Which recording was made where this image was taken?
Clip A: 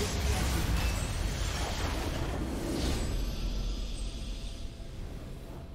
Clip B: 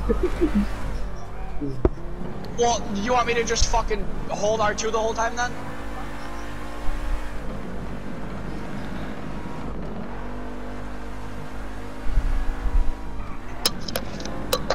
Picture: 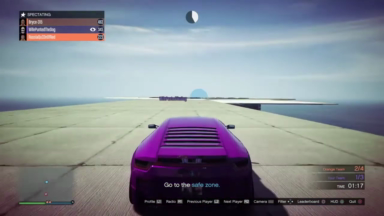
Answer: B